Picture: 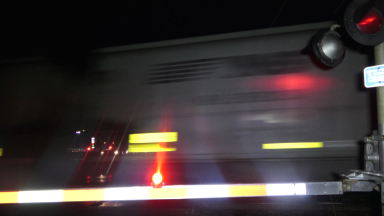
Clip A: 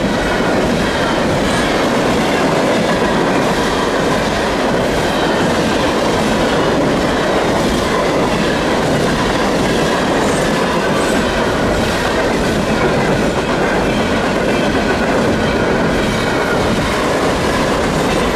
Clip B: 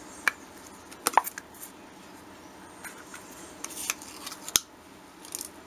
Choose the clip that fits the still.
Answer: A